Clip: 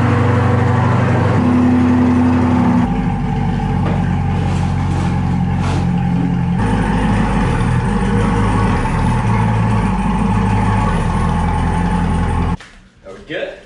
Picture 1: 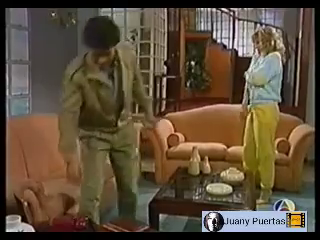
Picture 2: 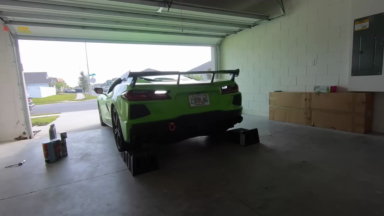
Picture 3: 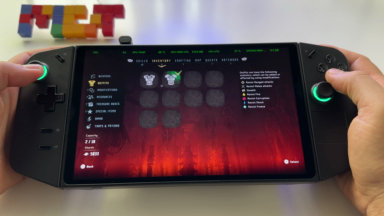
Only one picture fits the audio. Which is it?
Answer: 2